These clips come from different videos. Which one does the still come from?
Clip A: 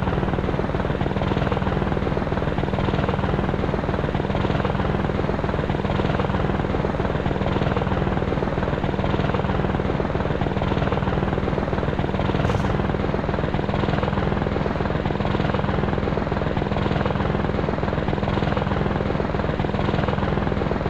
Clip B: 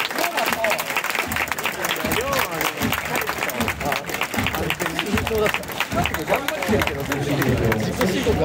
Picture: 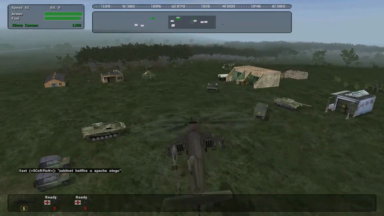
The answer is A